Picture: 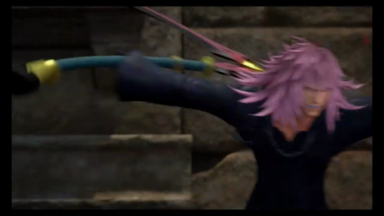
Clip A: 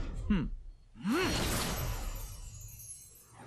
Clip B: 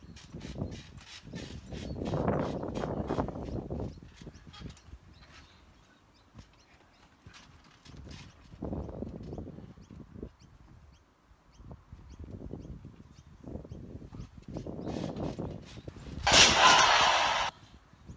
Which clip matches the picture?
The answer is A